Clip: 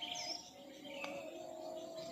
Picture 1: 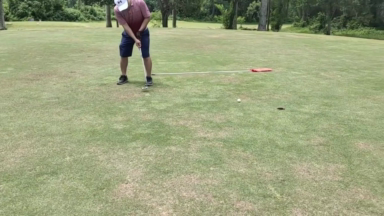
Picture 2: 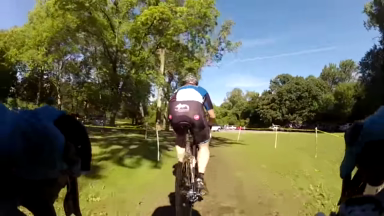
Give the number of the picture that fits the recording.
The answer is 1